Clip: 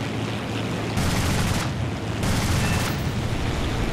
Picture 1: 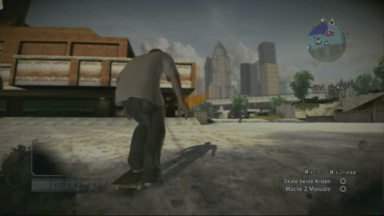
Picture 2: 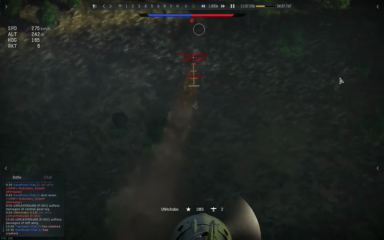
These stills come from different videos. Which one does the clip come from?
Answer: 2